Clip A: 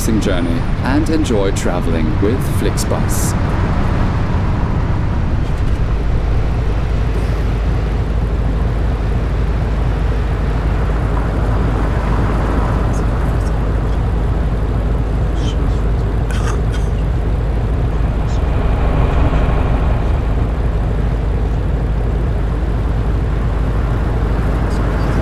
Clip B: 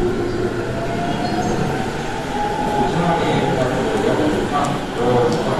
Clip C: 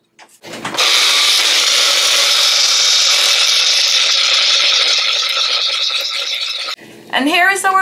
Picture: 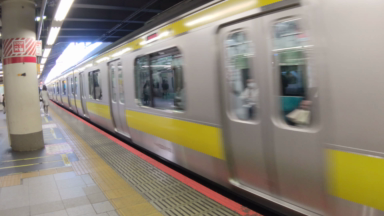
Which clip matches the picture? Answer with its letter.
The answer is B